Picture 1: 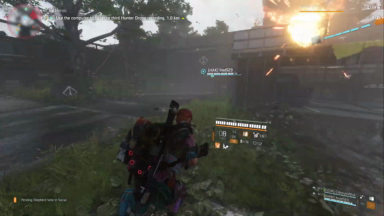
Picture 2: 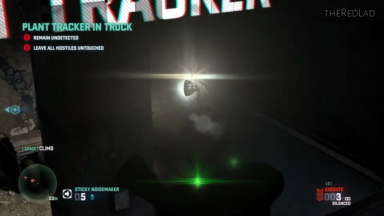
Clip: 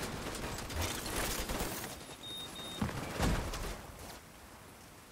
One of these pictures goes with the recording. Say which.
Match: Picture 1